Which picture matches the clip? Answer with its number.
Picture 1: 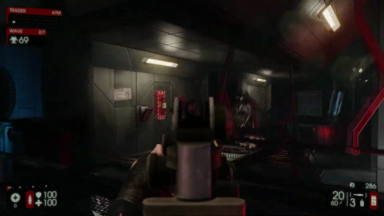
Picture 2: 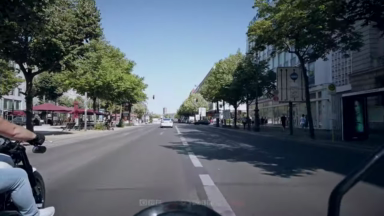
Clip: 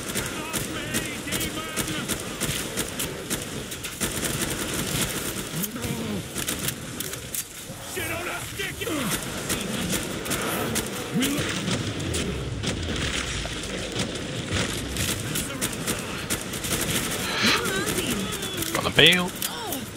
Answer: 1